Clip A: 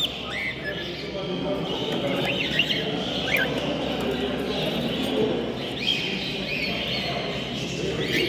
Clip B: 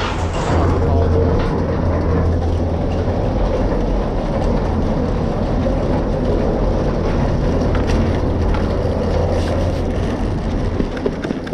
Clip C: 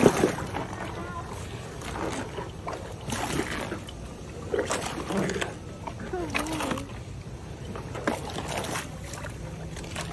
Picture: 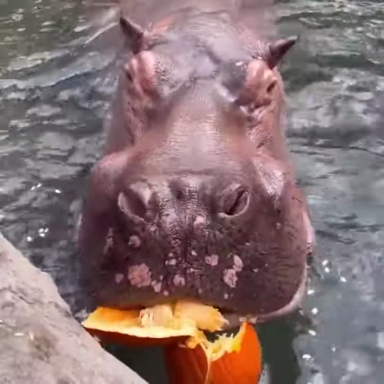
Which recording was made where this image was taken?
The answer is C